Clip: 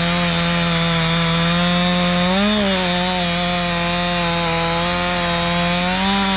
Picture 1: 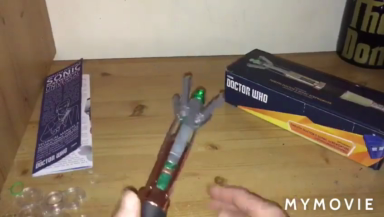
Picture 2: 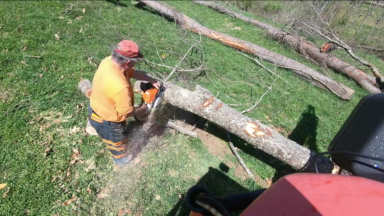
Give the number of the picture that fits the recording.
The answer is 2